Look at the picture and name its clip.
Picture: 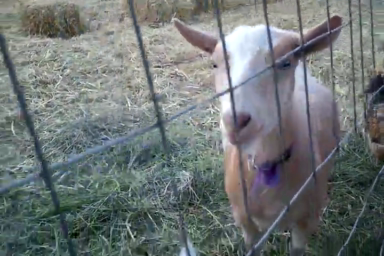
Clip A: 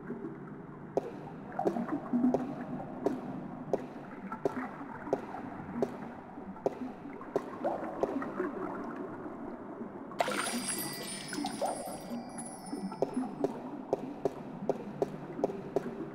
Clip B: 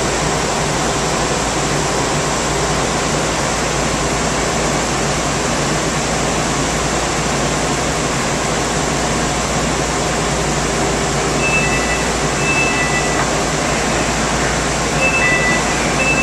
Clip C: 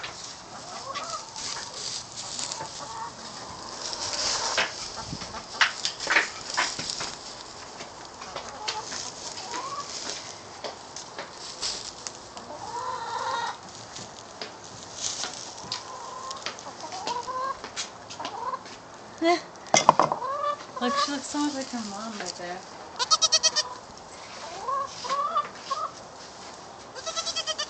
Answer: C